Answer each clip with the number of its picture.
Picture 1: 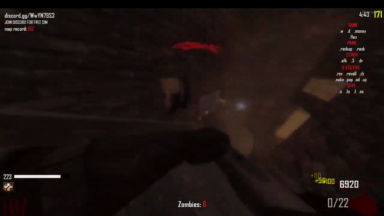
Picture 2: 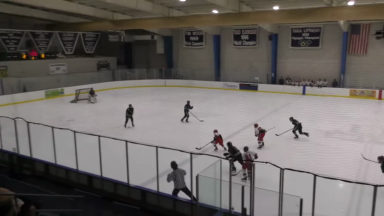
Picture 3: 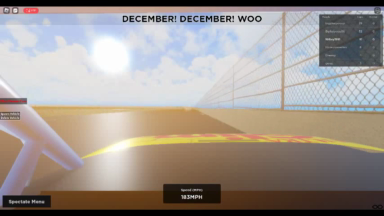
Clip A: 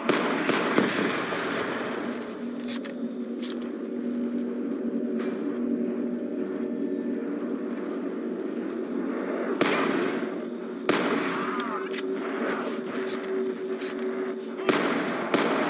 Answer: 1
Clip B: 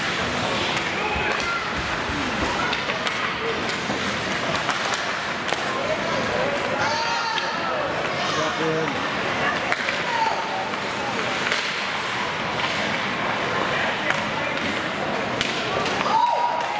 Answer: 2